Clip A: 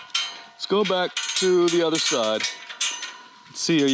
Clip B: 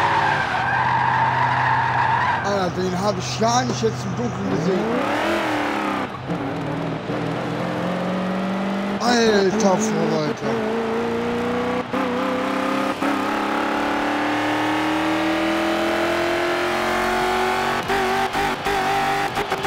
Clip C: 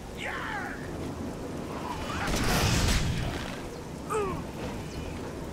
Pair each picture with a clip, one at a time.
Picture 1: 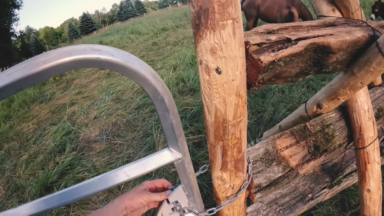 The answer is A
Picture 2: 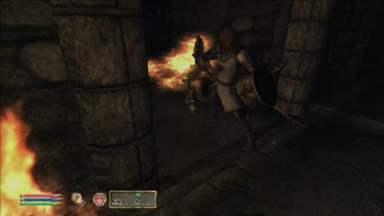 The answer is C